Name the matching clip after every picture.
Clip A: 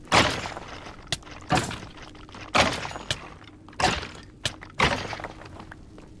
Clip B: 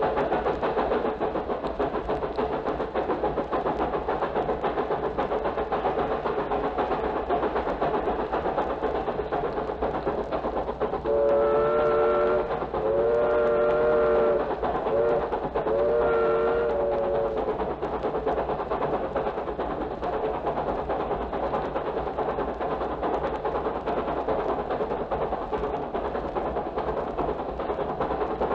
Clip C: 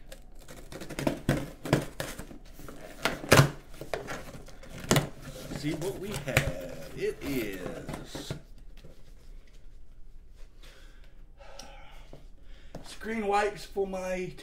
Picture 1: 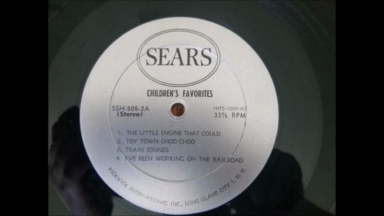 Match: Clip B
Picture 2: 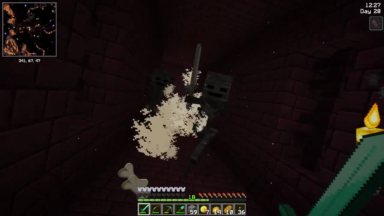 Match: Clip A